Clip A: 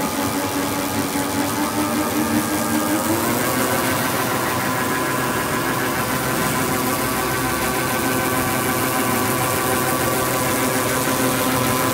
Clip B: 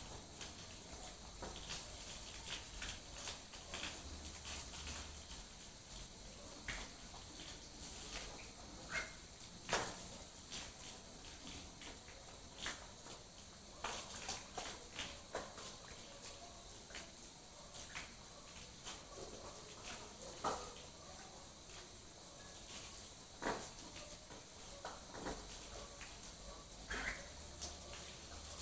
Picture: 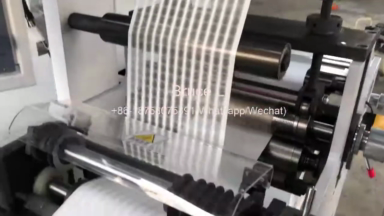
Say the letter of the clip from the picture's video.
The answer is A